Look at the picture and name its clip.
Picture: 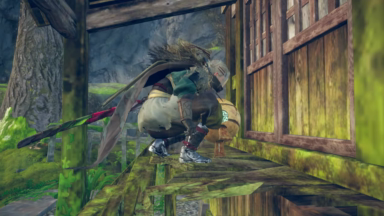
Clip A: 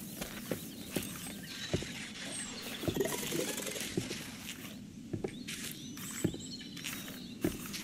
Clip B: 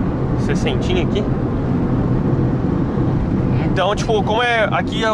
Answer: A